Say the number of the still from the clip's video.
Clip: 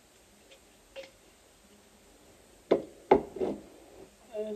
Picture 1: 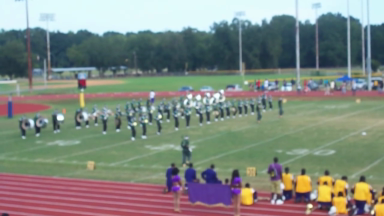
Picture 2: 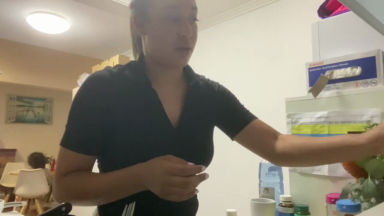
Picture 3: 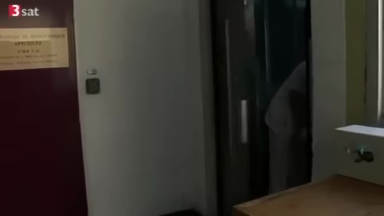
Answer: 2